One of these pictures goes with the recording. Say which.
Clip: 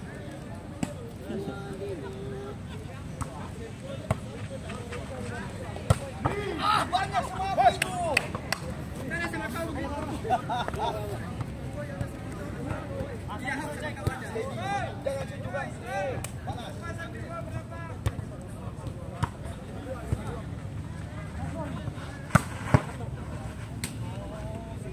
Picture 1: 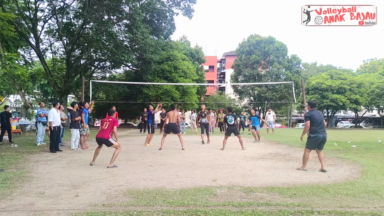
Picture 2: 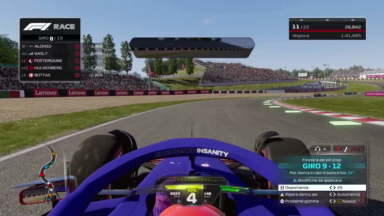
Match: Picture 1